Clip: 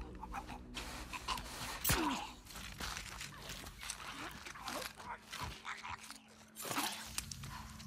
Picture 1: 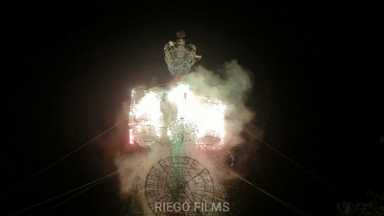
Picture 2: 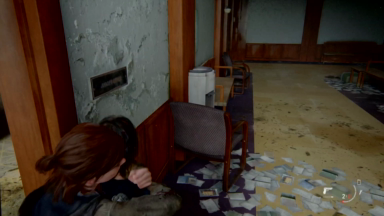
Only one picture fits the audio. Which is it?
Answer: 2